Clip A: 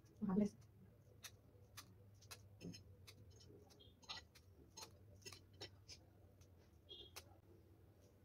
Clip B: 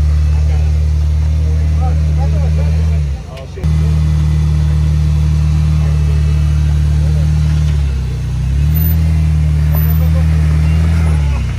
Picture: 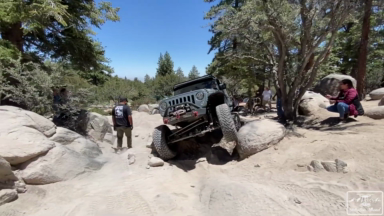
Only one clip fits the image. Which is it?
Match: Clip B